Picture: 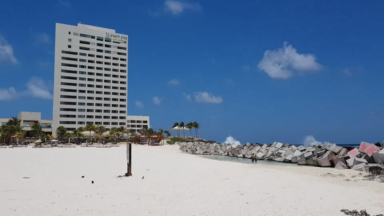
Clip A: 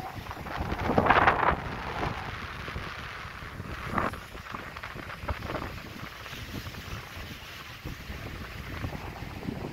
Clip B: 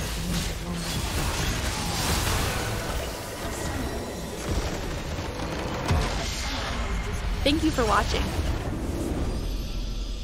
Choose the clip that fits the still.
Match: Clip A